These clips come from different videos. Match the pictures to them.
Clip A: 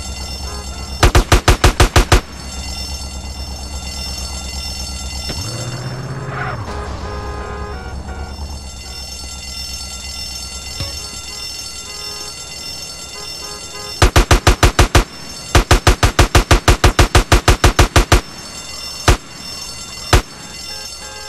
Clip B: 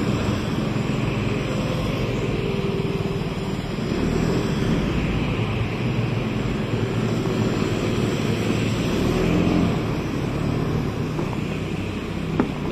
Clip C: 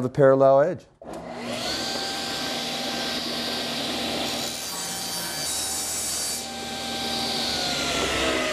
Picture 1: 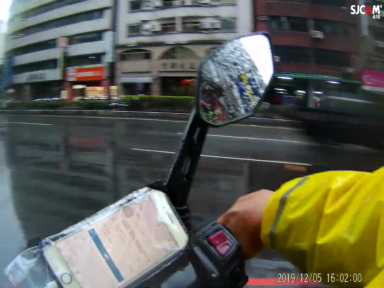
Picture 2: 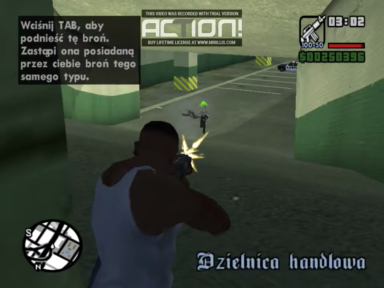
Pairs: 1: B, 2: A